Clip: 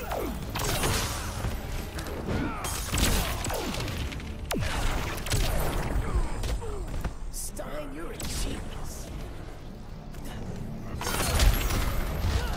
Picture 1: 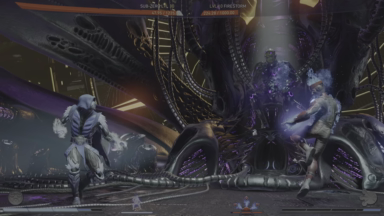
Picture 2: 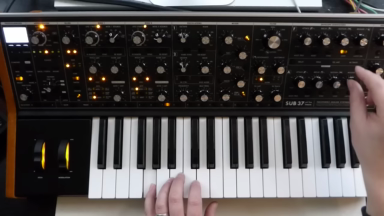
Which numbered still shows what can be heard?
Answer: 1